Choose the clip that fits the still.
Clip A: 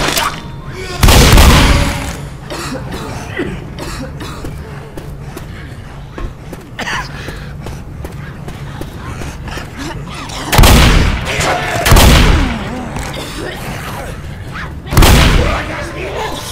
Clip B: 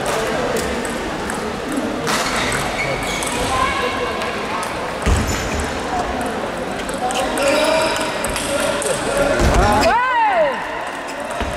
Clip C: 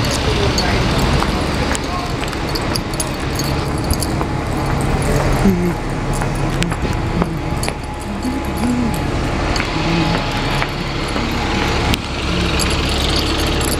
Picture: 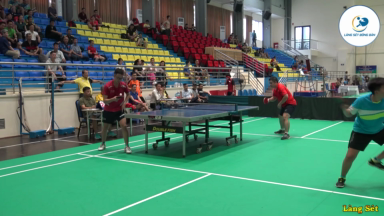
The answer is B